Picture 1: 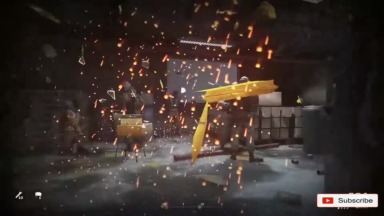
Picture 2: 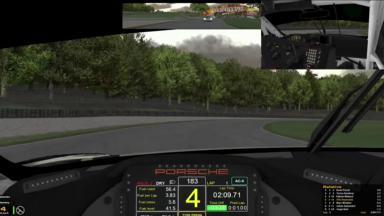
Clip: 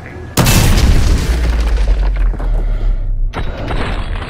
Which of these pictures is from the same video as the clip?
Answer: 1